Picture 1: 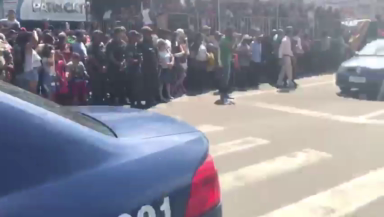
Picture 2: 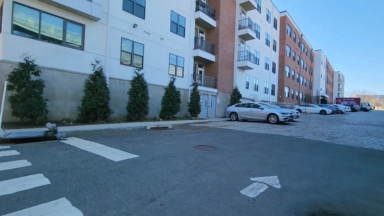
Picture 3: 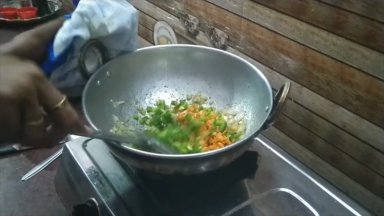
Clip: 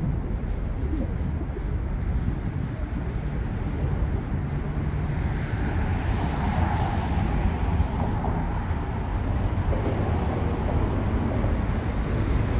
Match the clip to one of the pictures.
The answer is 2